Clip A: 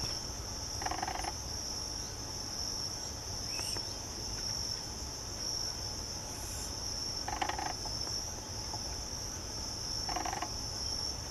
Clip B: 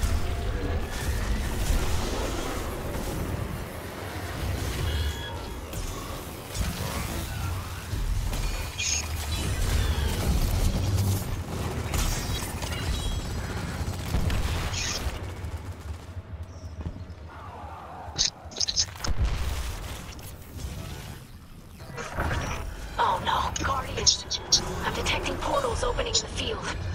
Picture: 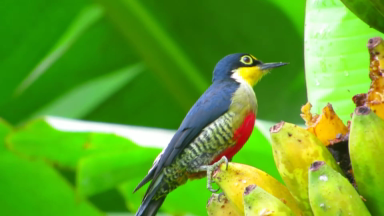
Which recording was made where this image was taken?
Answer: A